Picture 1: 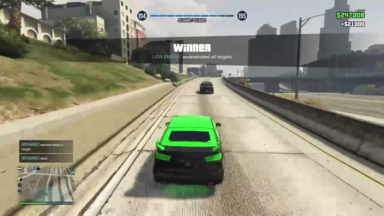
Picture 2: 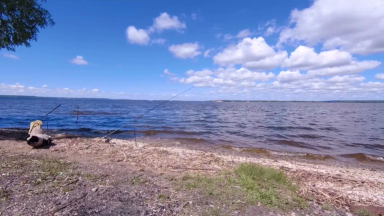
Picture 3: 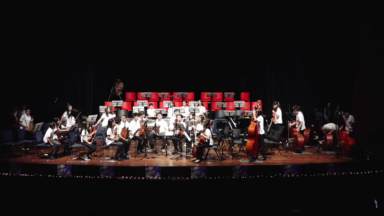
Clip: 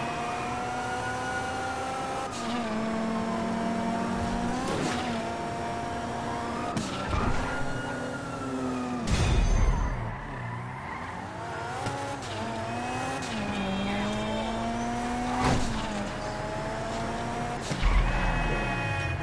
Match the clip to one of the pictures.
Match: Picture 1